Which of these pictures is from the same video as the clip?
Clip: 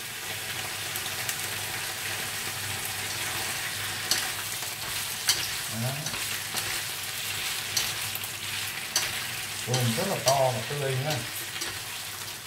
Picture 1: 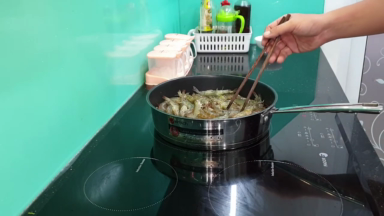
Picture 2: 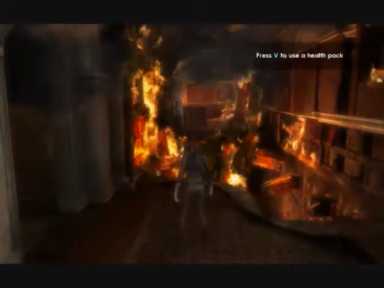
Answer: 1